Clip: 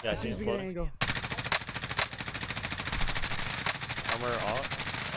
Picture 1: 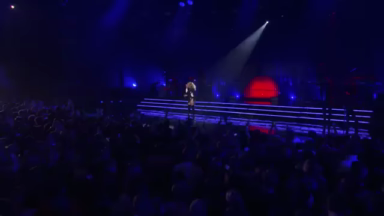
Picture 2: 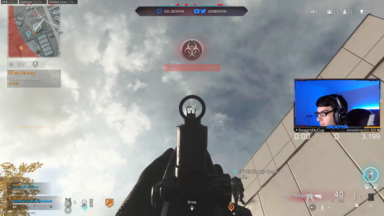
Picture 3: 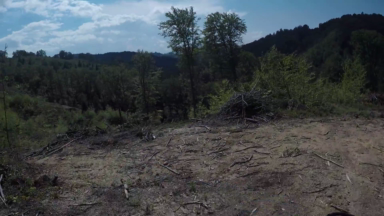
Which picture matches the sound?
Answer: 2